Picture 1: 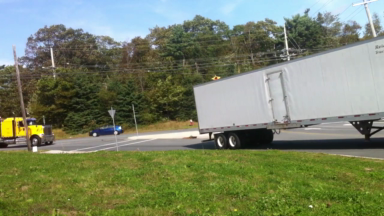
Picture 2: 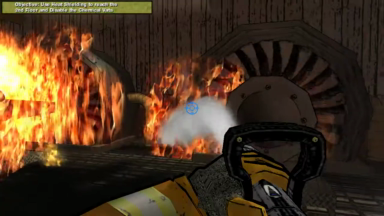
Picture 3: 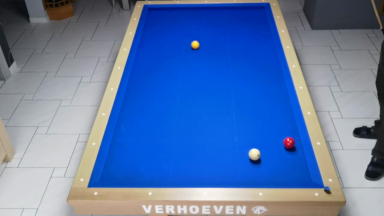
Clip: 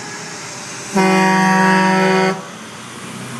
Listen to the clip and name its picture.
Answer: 1